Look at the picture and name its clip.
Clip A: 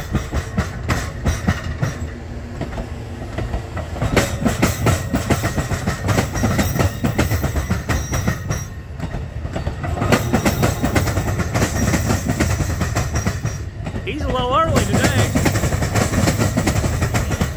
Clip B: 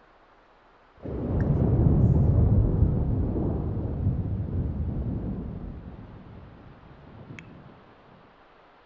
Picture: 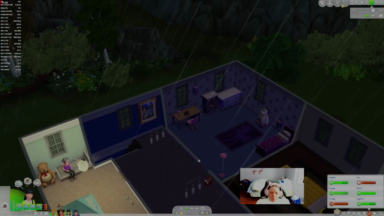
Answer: B